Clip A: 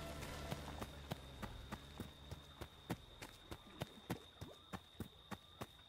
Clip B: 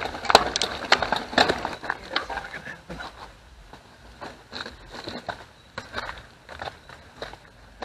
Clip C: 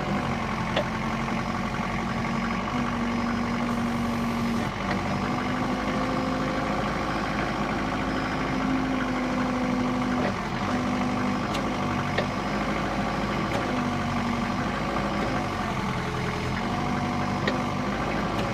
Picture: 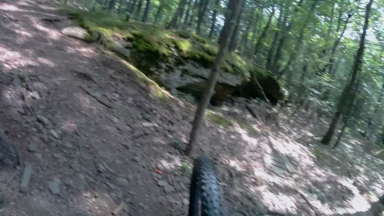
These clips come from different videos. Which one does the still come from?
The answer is B